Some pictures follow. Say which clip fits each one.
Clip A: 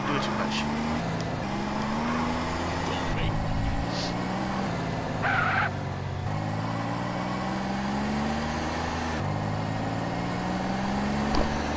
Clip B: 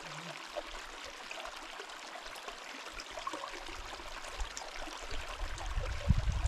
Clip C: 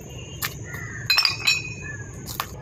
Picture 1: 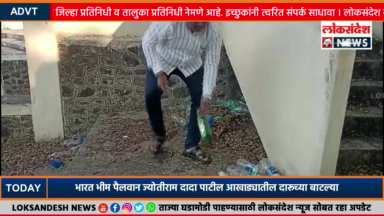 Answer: C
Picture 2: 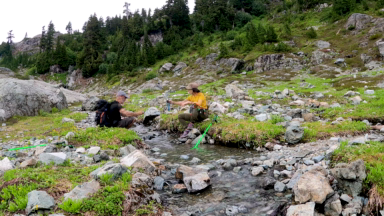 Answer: B